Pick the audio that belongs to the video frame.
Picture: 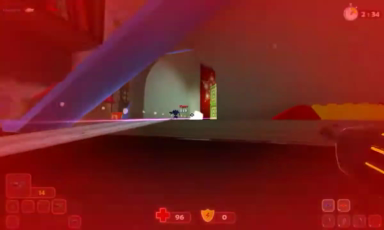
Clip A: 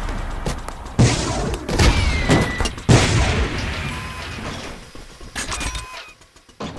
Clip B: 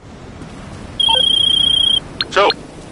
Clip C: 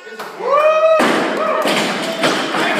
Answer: A